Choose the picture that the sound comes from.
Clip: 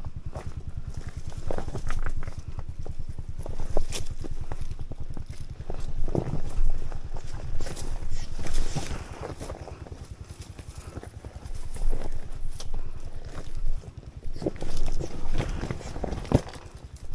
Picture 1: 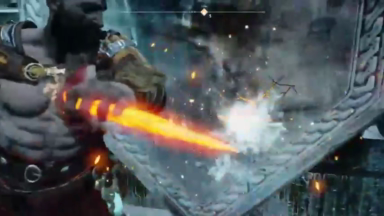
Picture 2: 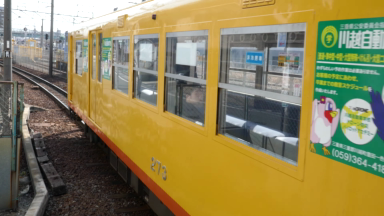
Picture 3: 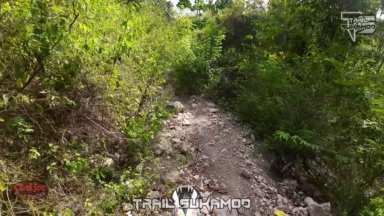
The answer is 3